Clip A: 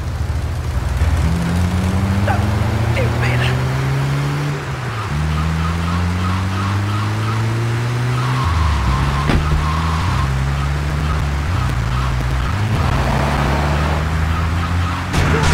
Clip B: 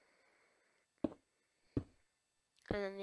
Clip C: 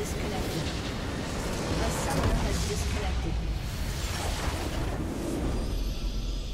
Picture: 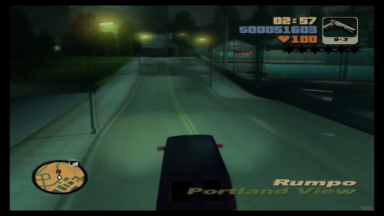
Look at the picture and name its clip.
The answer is A